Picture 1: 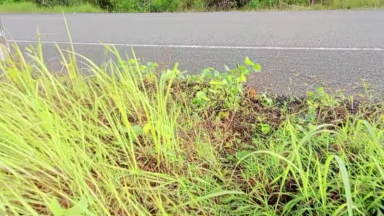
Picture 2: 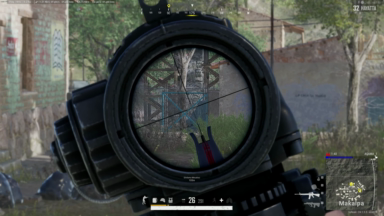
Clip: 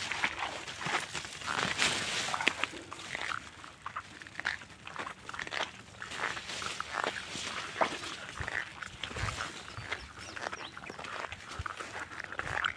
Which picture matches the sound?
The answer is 1